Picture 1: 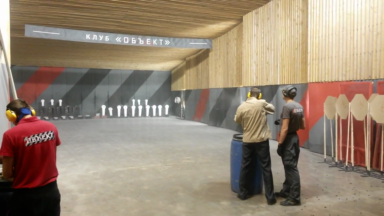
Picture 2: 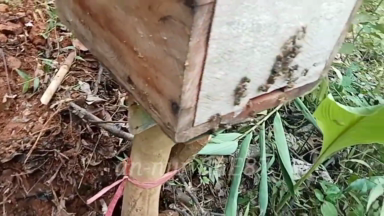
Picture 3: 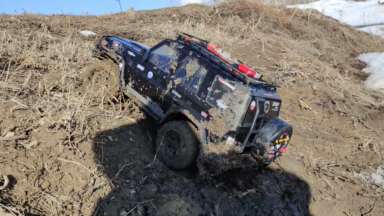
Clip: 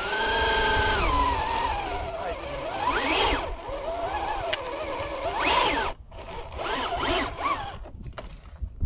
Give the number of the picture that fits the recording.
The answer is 3